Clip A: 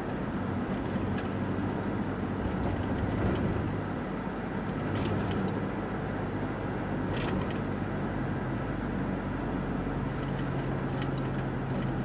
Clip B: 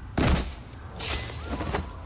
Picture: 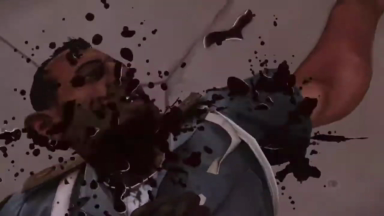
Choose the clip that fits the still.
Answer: B